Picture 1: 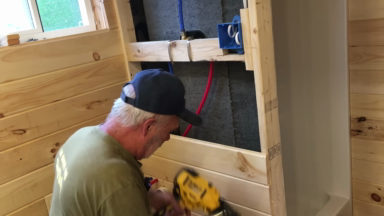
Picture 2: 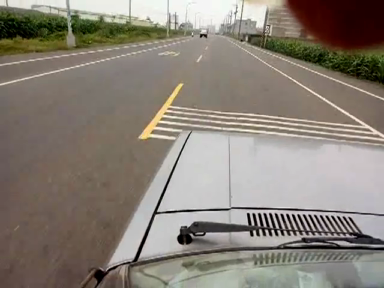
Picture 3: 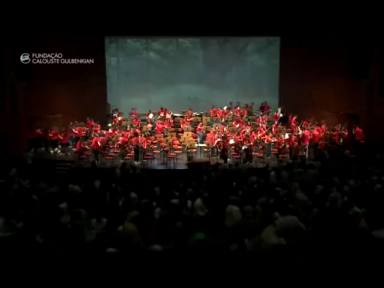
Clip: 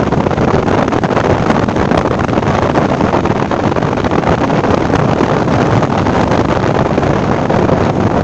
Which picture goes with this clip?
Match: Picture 2